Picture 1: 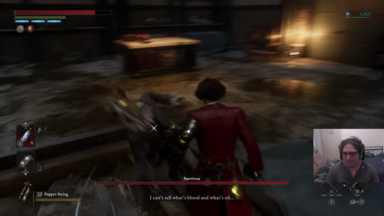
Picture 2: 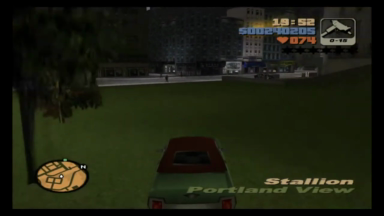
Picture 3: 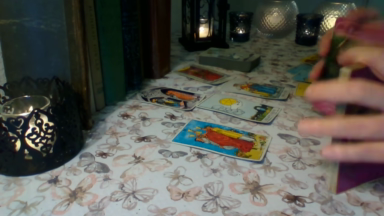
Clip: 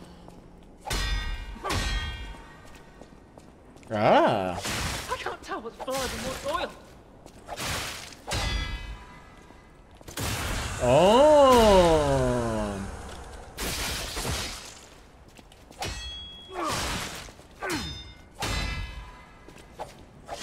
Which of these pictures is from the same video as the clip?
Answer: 1